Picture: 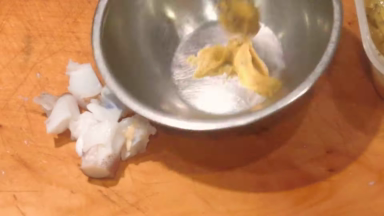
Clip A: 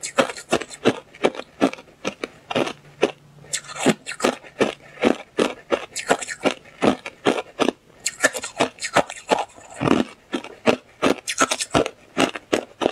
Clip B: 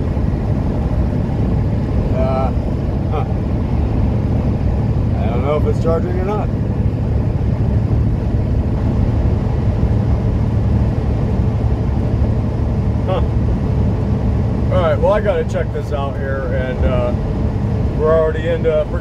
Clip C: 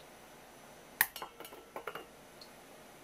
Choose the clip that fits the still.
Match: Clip C